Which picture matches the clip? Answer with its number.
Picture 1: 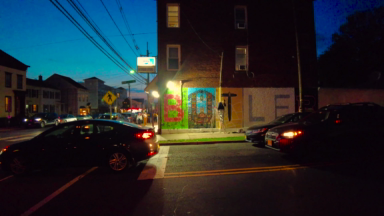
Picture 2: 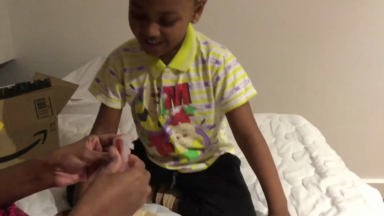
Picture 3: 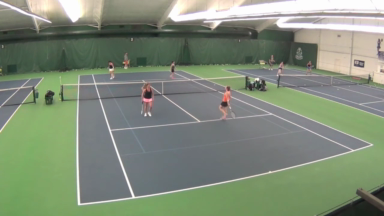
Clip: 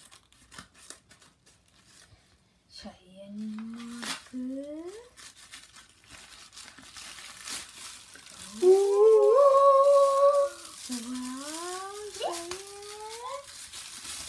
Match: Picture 2